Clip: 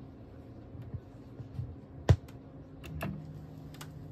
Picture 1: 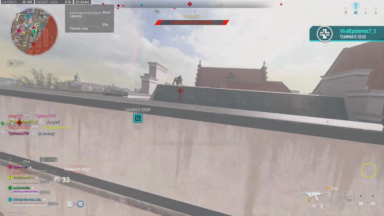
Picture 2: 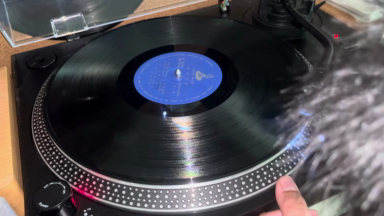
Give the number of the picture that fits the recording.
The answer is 2